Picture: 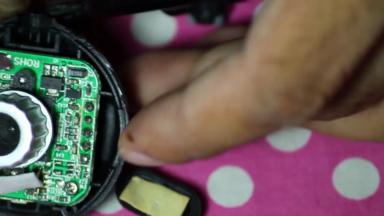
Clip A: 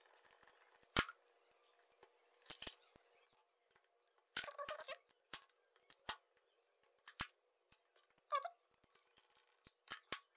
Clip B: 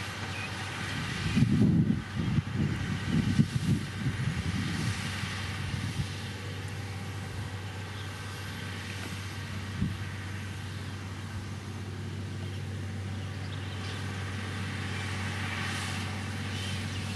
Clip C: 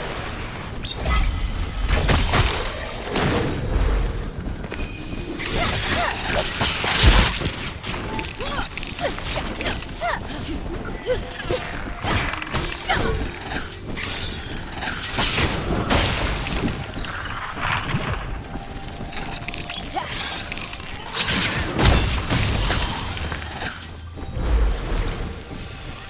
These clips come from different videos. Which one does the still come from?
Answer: A